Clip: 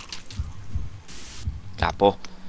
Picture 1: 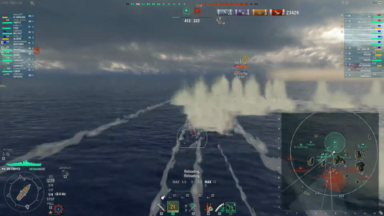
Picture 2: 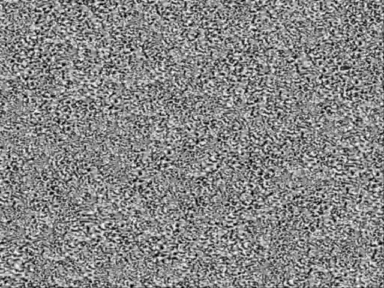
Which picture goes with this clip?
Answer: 2